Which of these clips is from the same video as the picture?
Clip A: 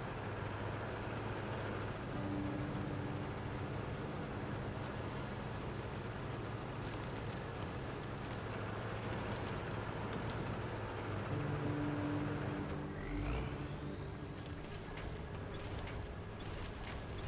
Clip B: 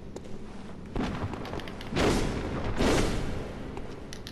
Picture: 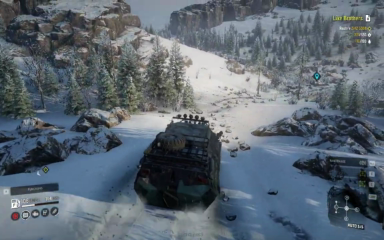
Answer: A